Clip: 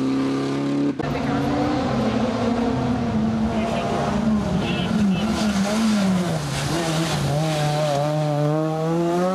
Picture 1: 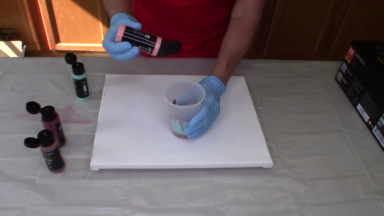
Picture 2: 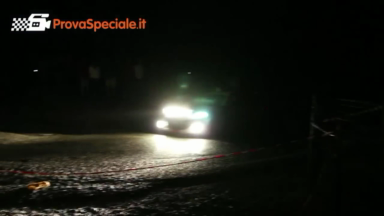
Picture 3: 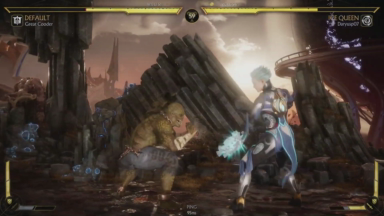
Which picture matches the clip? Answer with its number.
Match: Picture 2